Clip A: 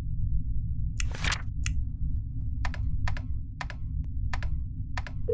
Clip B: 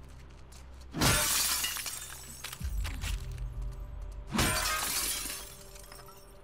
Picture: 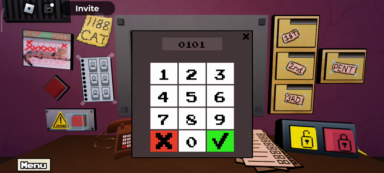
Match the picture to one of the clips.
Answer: A